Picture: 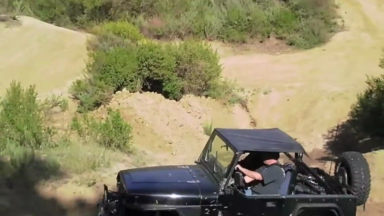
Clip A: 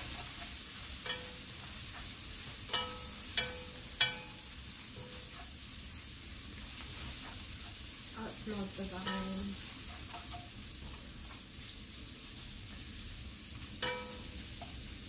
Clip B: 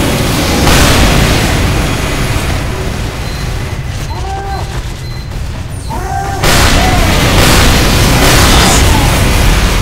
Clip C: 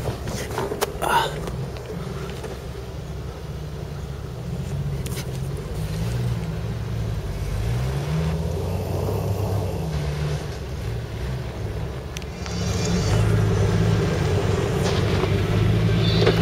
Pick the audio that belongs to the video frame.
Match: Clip C